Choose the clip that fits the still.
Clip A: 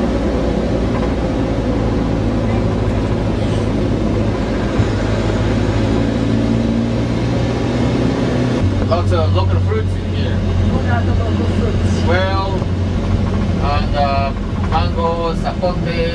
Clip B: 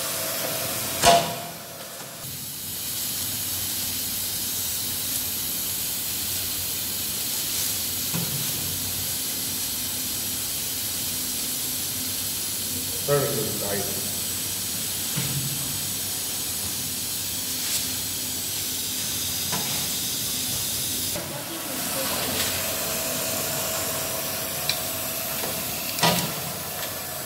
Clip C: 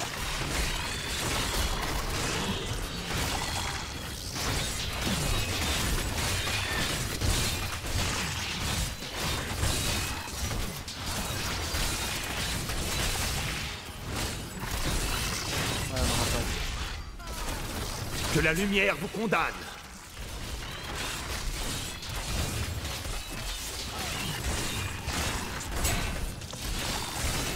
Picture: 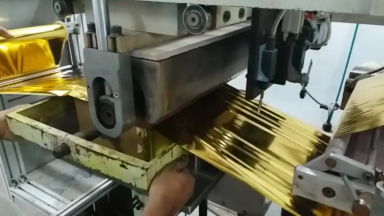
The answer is B